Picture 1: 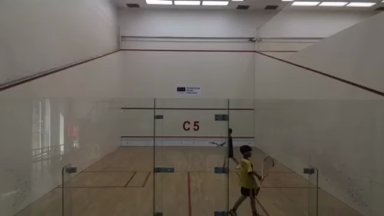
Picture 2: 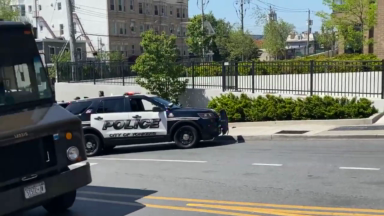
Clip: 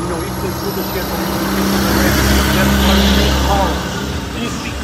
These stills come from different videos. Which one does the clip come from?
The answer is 2